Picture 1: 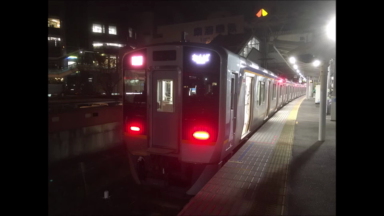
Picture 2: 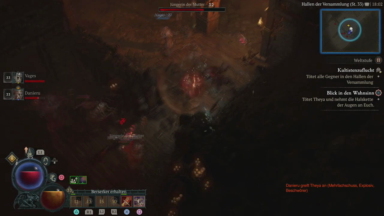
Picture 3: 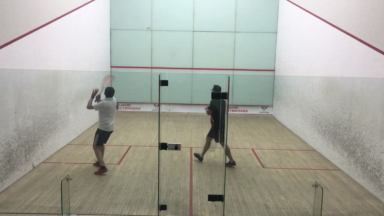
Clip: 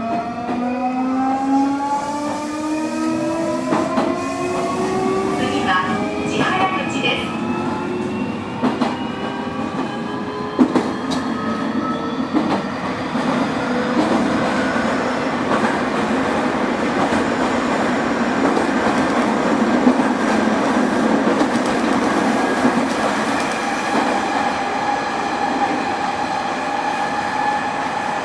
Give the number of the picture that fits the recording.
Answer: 1